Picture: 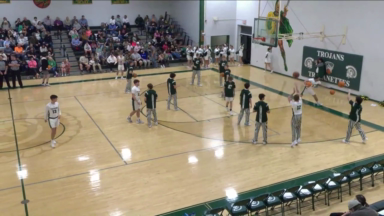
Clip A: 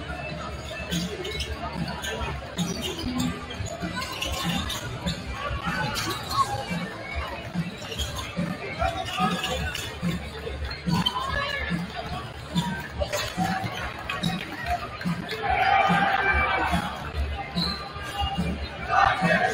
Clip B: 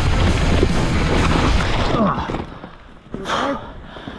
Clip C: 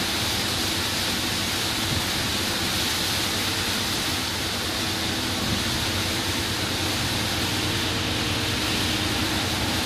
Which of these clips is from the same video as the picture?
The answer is A